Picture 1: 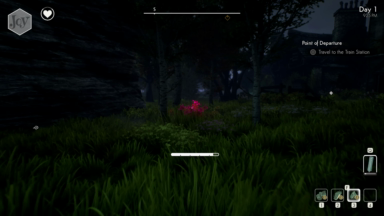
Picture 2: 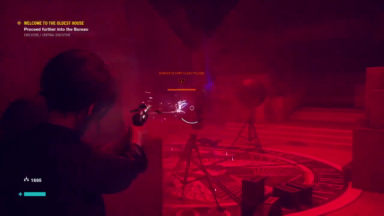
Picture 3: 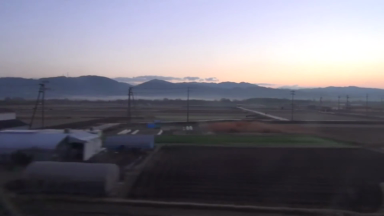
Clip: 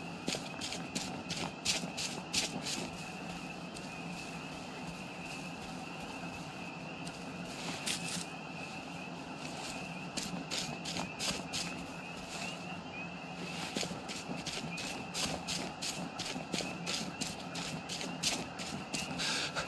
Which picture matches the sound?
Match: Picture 1